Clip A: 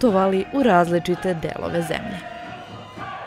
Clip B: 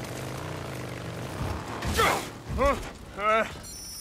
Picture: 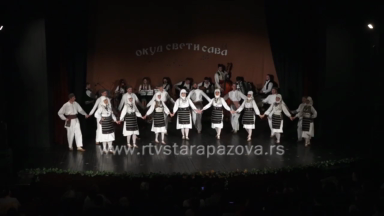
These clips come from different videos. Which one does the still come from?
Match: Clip A